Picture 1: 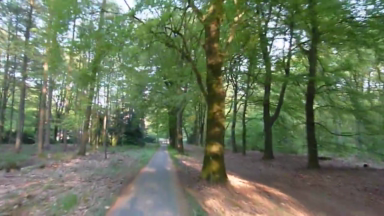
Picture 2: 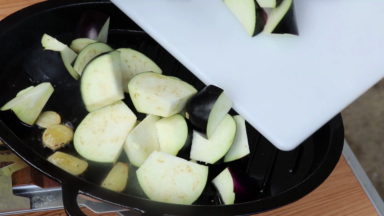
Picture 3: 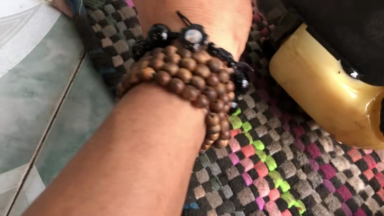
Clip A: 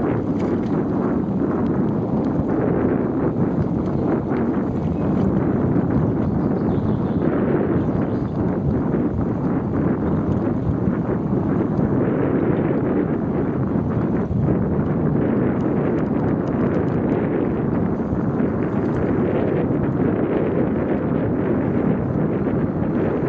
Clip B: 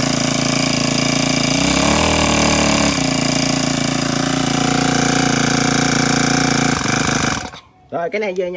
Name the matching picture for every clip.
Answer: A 1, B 3